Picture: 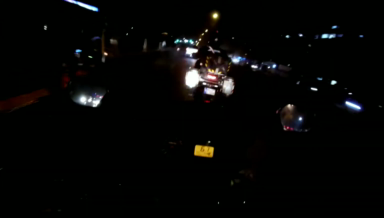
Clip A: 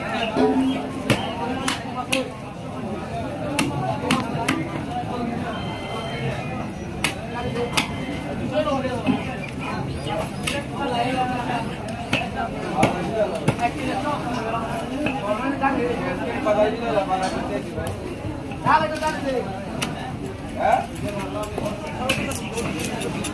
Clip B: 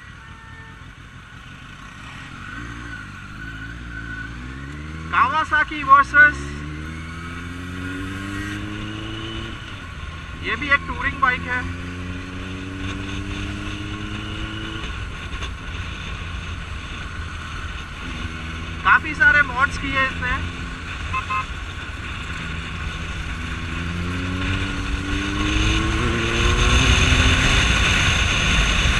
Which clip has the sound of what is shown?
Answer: B